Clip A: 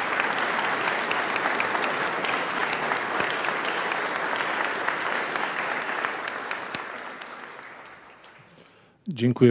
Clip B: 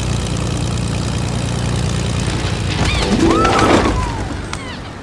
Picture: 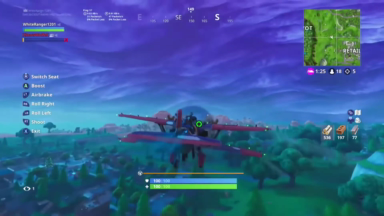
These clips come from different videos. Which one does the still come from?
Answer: B